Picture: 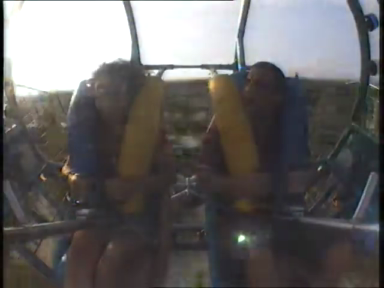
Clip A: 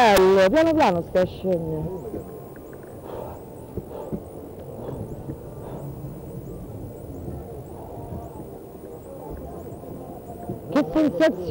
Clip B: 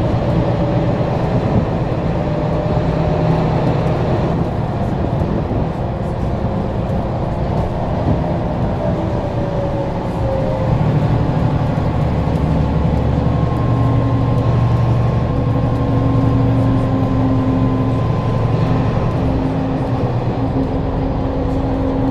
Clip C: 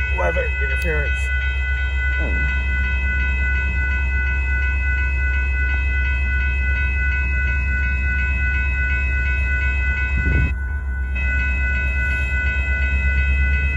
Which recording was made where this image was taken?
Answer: A